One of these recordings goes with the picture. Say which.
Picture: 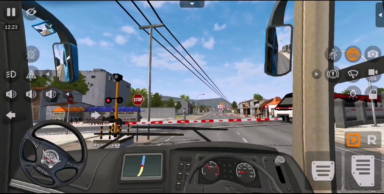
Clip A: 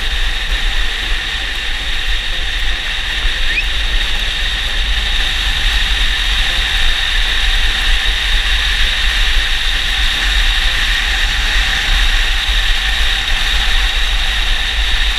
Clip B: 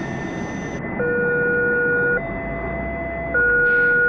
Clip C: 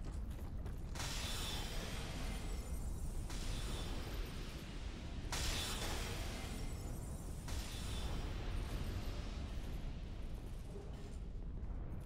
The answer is B